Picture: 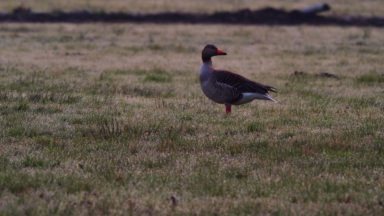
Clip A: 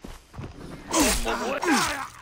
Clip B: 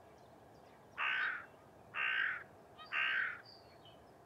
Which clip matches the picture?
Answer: B